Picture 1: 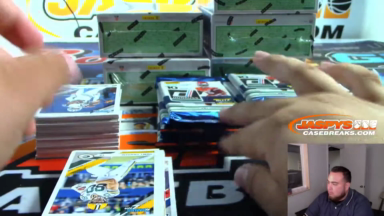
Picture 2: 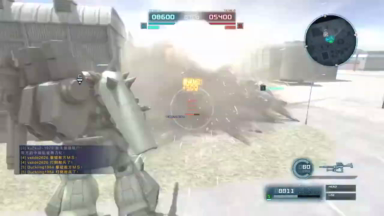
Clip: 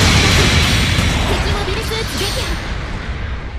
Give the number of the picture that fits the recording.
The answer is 2